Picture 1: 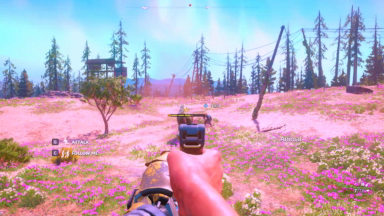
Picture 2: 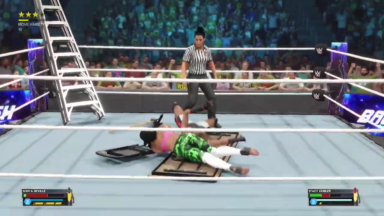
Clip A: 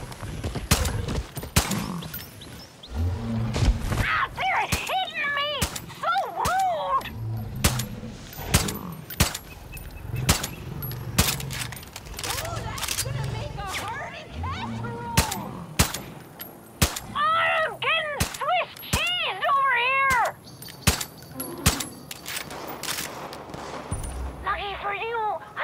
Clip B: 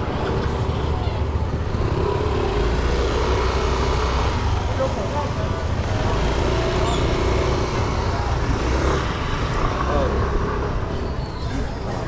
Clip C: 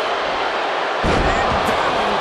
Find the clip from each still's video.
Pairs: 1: A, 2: C